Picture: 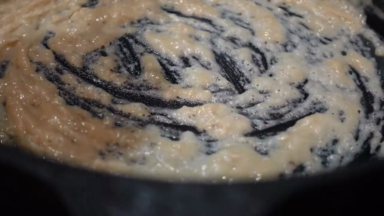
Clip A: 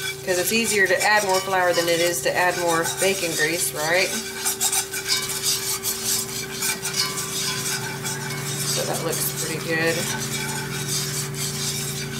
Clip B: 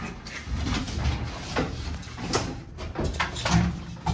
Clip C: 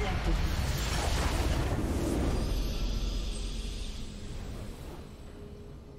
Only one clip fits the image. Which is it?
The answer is A